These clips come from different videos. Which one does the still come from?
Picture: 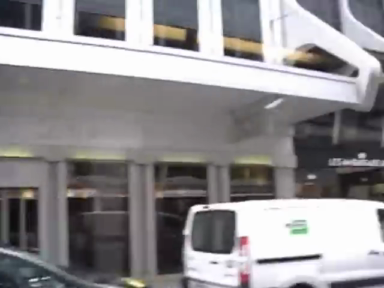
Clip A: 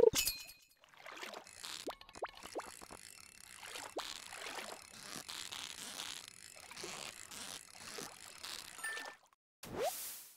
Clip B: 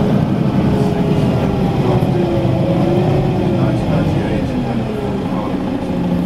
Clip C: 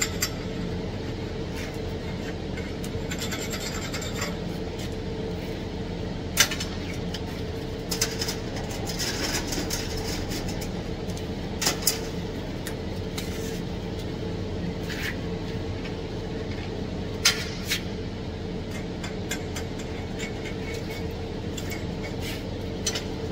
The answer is B